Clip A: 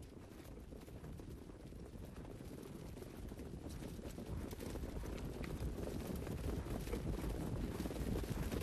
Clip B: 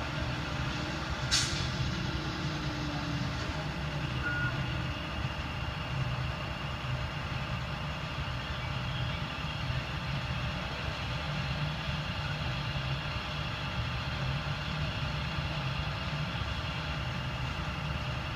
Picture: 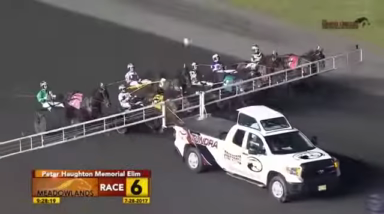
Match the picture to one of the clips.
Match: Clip A